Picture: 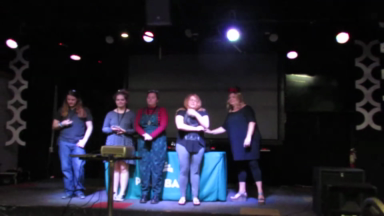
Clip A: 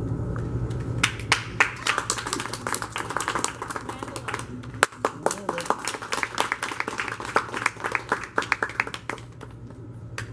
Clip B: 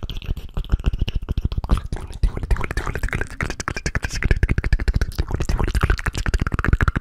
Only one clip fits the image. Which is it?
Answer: A